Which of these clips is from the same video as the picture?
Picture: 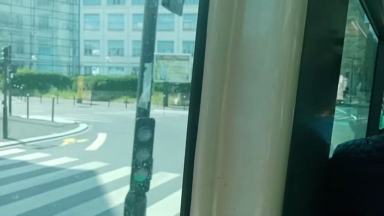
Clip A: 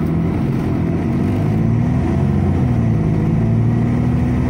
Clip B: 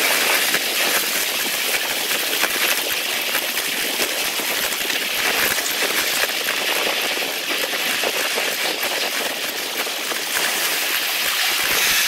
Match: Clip A